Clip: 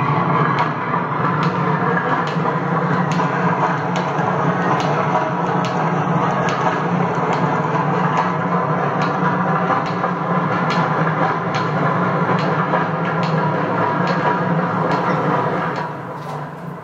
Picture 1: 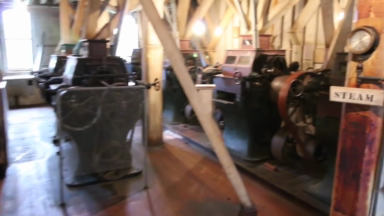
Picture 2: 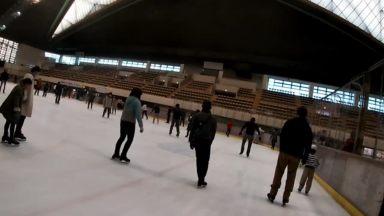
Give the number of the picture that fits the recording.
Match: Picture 1